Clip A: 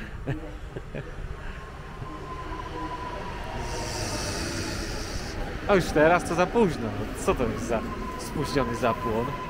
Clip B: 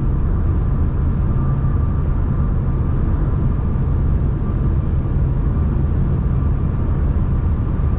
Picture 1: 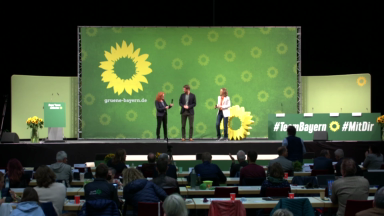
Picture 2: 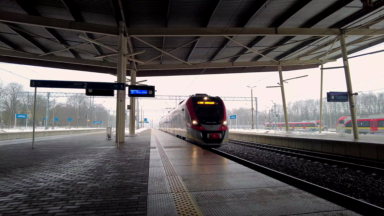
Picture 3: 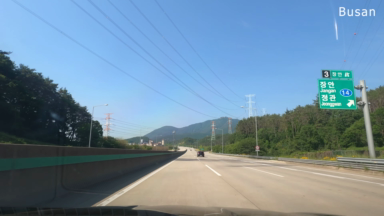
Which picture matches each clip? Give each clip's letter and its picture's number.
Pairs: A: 2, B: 3